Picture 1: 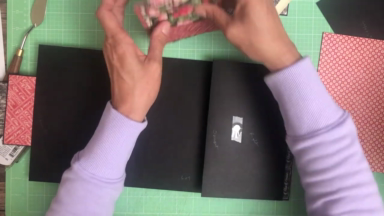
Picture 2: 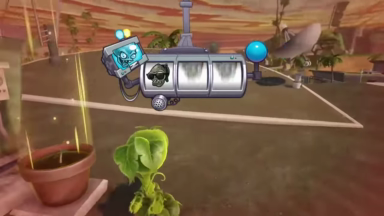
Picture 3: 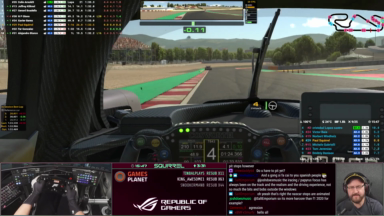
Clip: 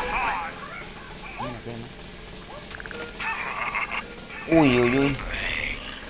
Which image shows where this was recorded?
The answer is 2